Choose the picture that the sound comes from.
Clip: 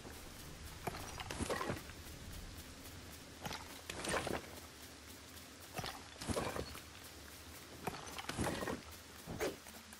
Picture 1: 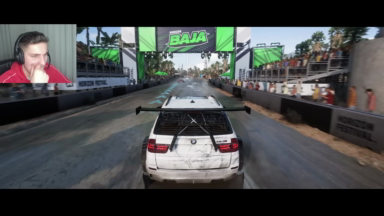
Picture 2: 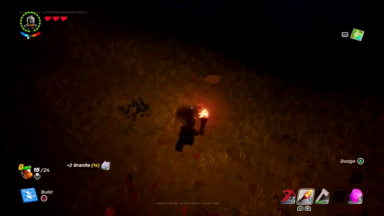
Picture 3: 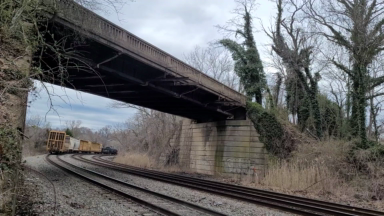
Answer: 2